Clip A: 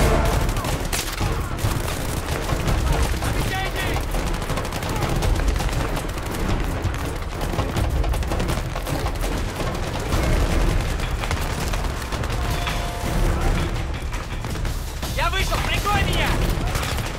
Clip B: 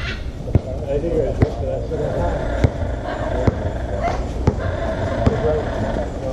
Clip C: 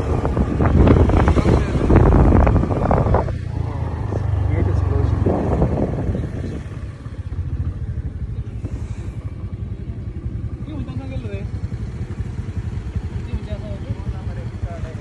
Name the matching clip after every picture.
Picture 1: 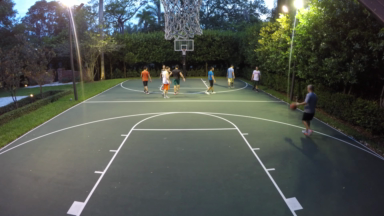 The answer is B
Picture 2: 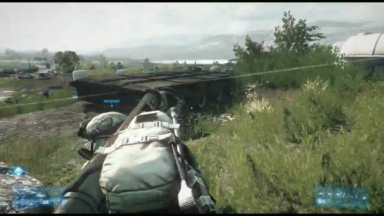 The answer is A